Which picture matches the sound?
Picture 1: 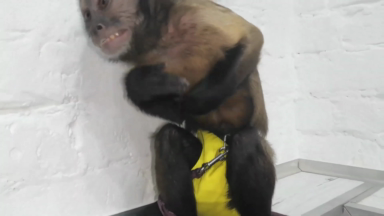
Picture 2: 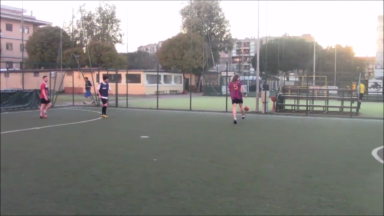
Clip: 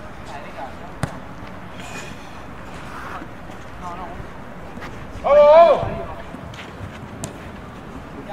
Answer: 2